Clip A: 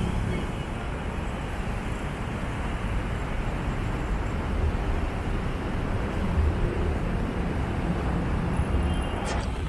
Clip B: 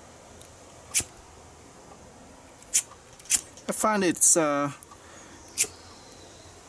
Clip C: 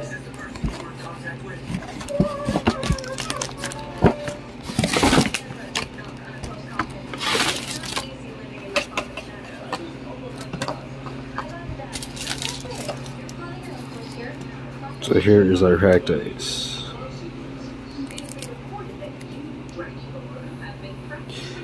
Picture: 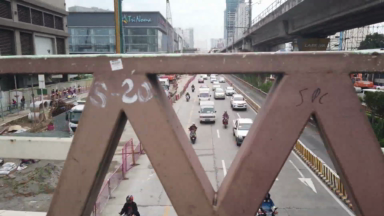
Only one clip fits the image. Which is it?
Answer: A